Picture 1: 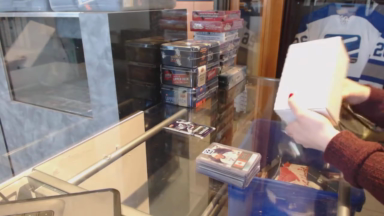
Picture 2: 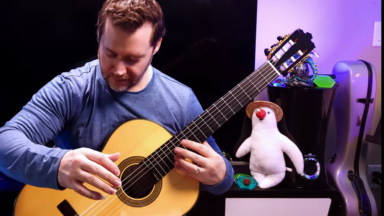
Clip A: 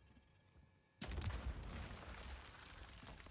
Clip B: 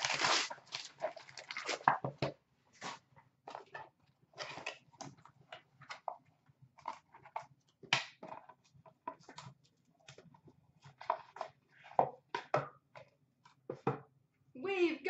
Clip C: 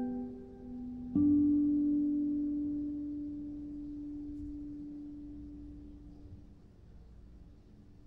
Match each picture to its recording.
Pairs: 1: B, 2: C